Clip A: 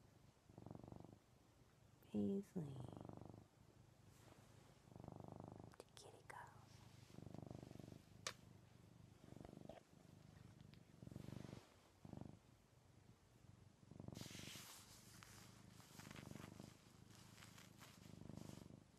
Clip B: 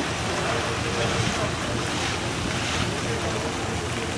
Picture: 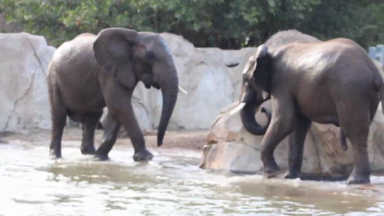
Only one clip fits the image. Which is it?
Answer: B